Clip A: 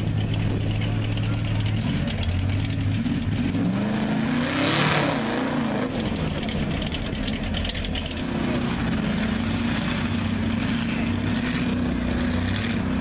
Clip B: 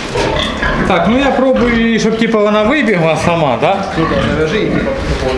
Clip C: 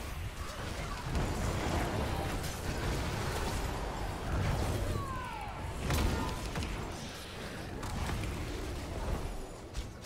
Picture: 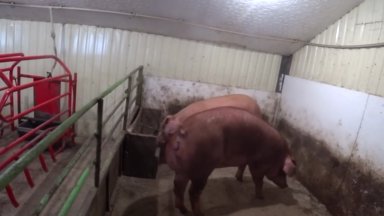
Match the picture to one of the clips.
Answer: B